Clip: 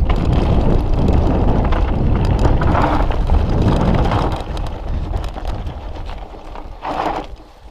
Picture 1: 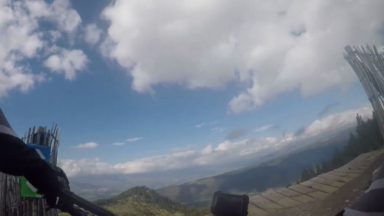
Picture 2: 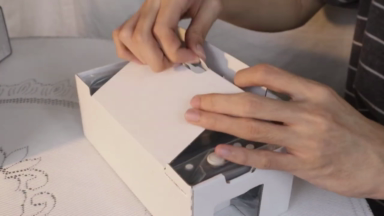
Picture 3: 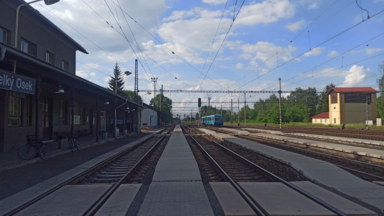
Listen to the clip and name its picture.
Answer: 1